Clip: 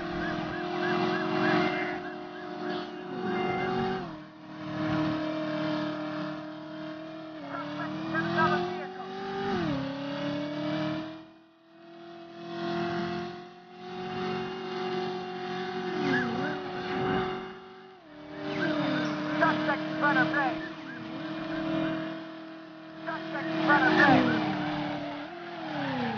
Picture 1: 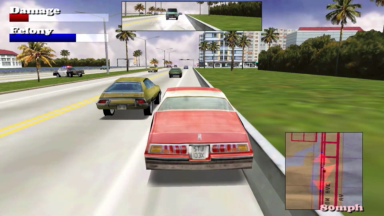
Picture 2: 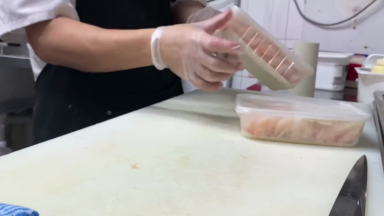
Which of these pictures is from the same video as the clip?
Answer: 1